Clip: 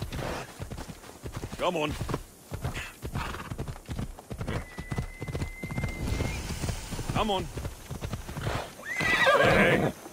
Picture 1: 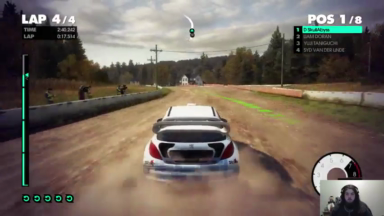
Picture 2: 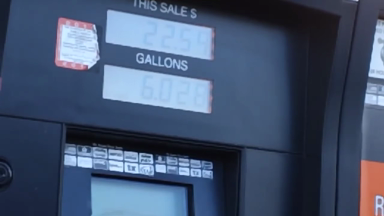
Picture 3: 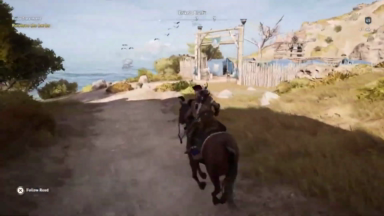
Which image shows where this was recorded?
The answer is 3